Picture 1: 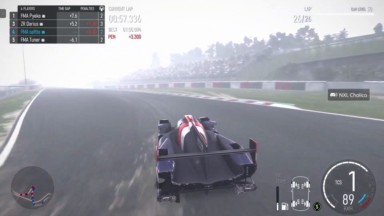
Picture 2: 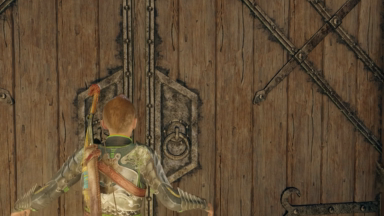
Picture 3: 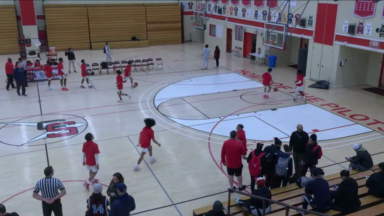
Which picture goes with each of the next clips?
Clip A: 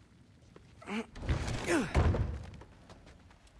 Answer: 2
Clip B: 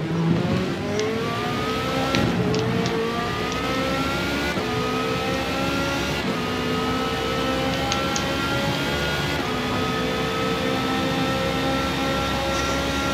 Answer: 1